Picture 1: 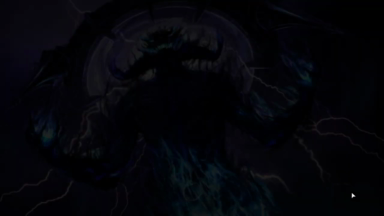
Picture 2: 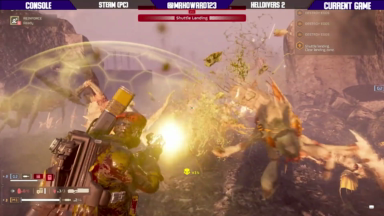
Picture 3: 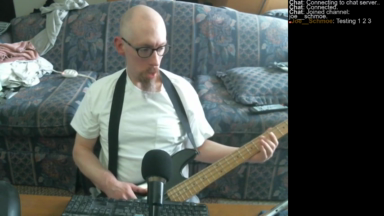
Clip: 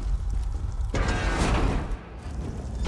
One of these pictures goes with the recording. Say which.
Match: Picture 1